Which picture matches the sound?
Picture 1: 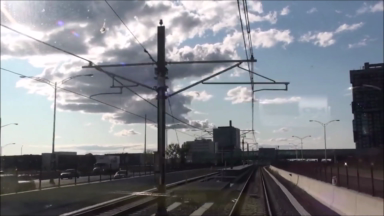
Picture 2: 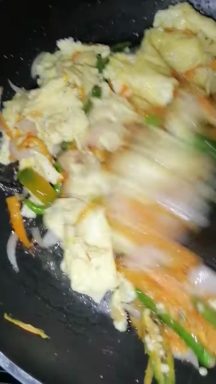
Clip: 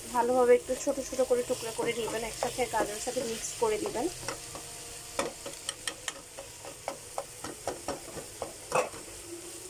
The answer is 2